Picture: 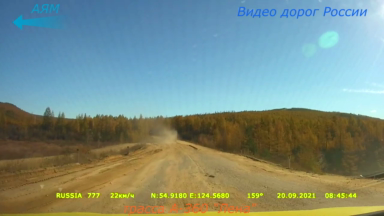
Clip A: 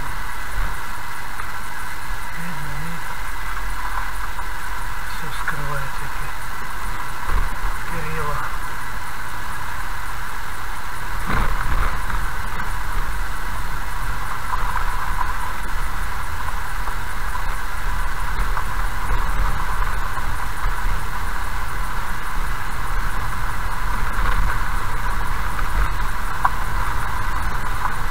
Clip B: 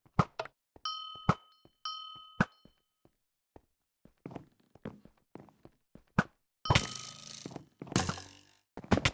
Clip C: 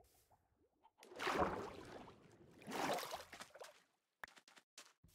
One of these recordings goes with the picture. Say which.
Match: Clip A